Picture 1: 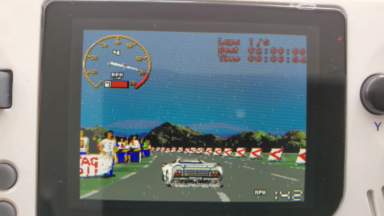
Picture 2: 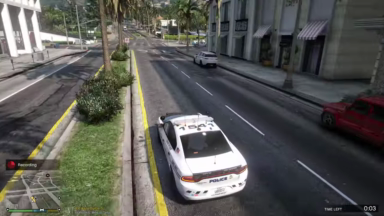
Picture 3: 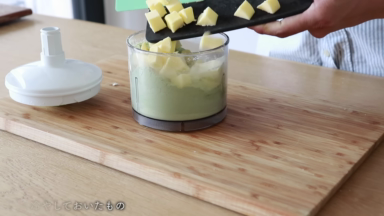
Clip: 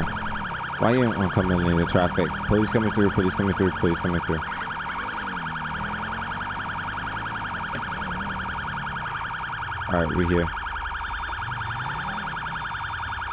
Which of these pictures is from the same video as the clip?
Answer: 2